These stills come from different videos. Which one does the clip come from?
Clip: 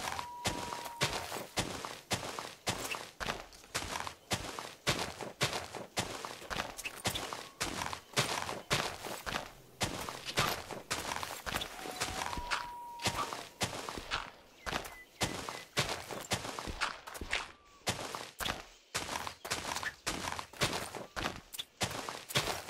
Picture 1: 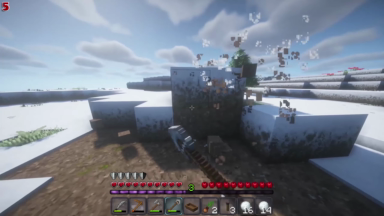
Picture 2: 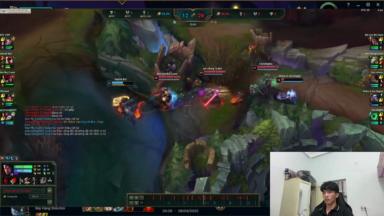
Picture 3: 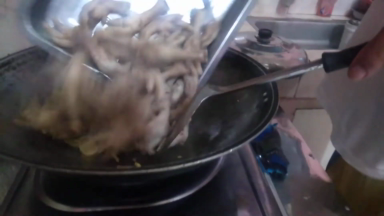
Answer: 1